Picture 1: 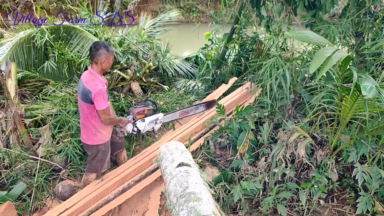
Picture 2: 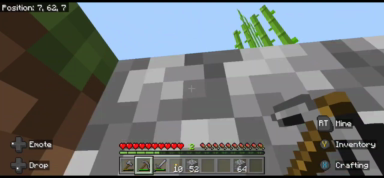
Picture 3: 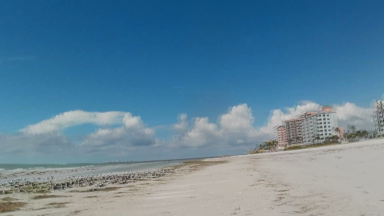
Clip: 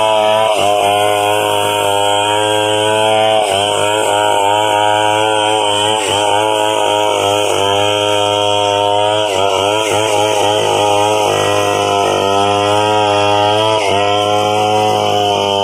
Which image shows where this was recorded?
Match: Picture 1